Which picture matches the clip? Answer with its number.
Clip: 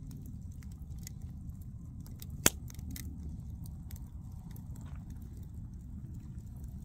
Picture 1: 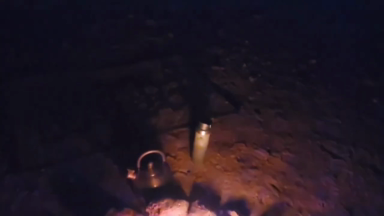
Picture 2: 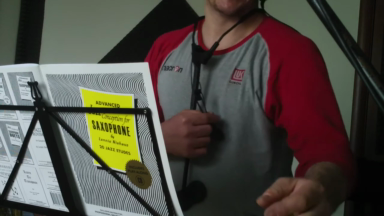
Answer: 1